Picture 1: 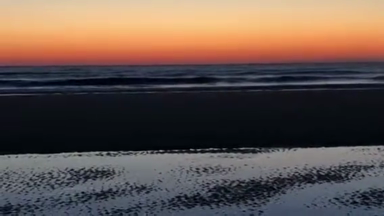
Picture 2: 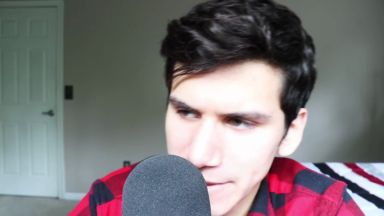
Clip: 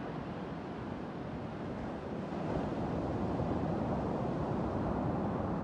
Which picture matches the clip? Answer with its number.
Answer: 1